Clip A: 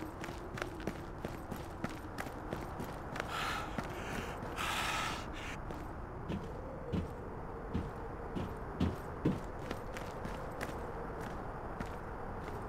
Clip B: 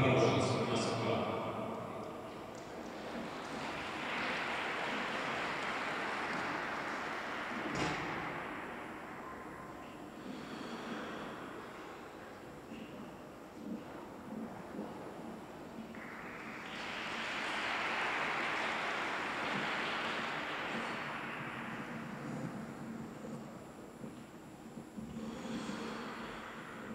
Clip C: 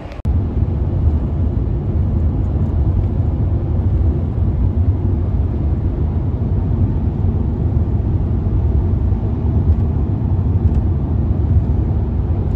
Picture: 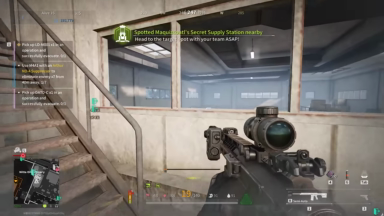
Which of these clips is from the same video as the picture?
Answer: A